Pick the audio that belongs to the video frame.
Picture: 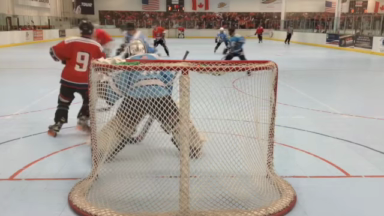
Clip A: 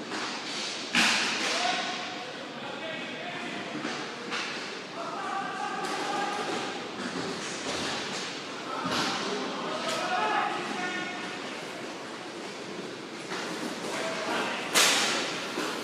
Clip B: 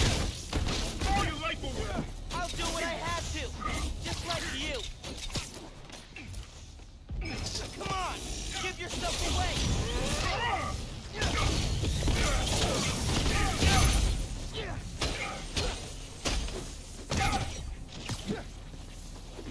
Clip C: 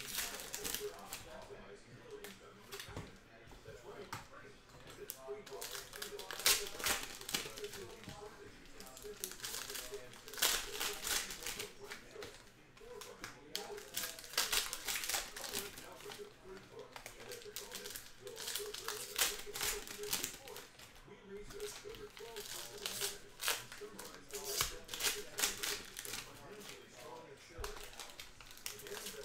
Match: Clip A